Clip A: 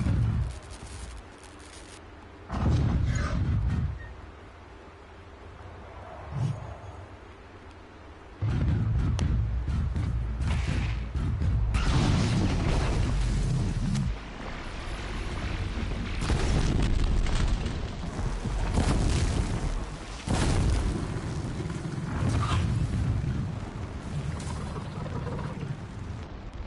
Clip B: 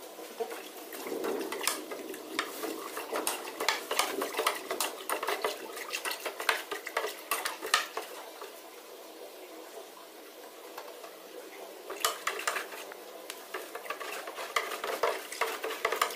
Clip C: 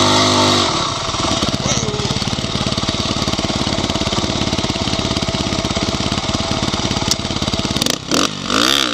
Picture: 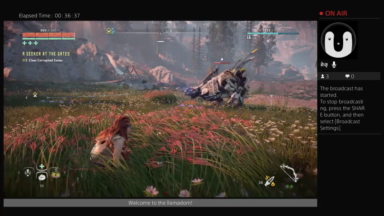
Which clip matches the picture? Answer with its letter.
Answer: A